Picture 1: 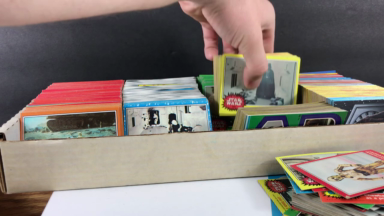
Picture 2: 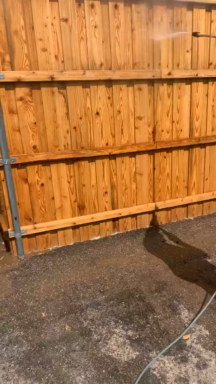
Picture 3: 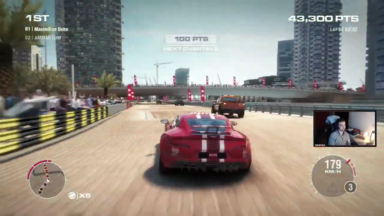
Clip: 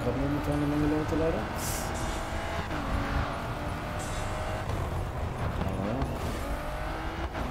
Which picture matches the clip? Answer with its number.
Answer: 3